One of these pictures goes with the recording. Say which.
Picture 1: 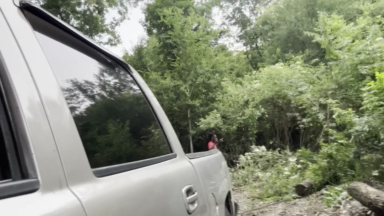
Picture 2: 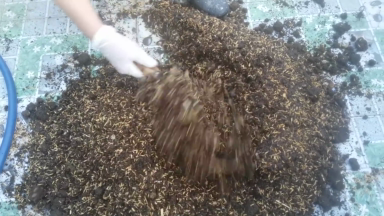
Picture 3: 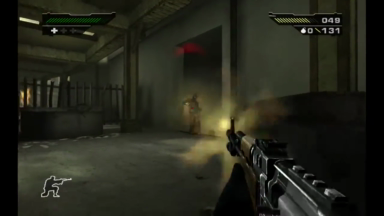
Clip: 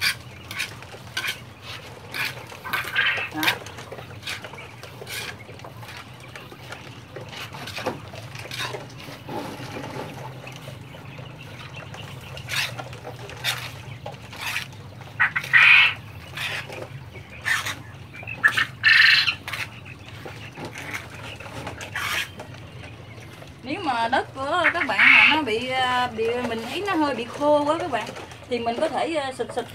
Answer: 2